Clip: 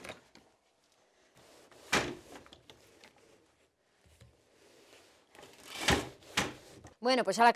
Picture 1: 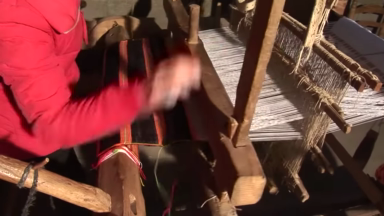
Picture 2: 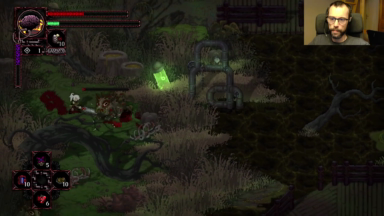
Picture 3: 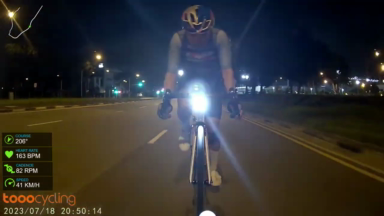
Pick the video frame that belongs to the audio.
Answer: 1